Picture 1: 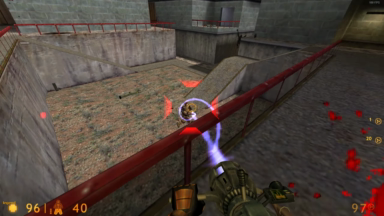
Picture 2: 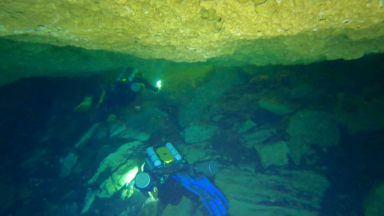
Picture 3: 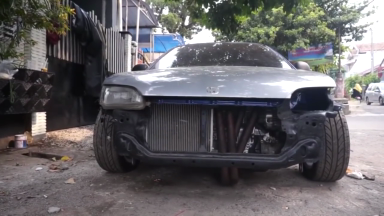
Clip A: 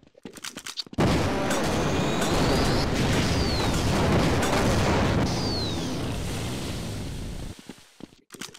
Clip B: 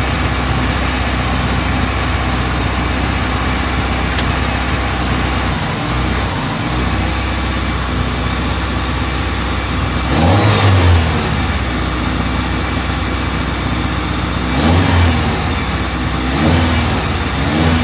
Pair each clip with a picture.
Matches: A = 1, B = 3